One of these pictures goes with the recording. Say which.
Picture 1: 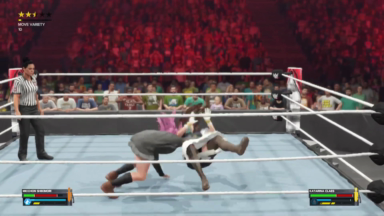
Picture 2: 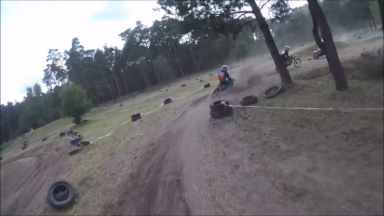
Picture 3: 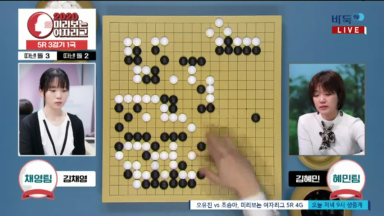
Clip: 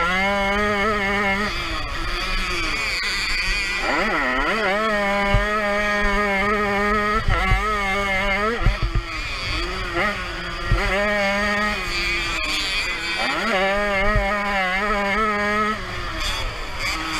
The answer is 2